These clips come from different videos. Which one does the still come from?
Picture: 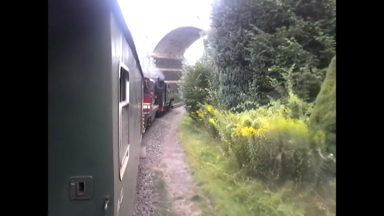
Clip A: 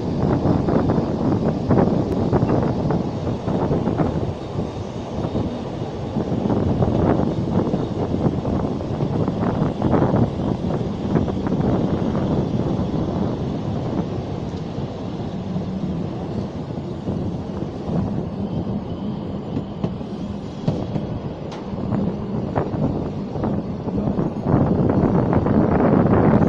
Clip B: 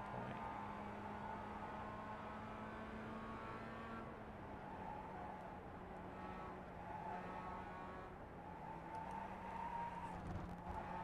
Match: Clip A